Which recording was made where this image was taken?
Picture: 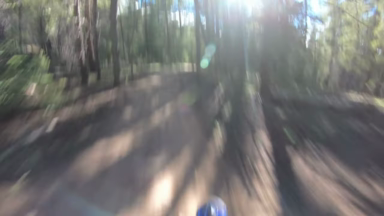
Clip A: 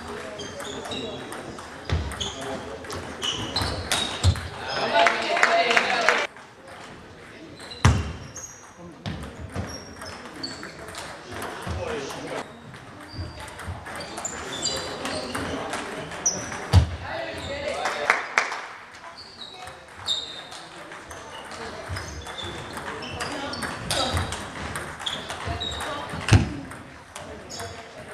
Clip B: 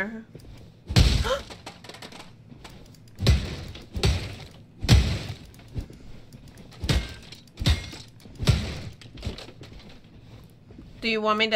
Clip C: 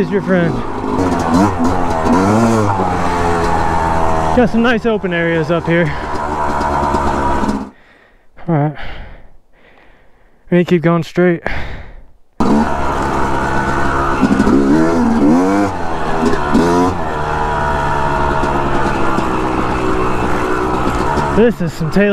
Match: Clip C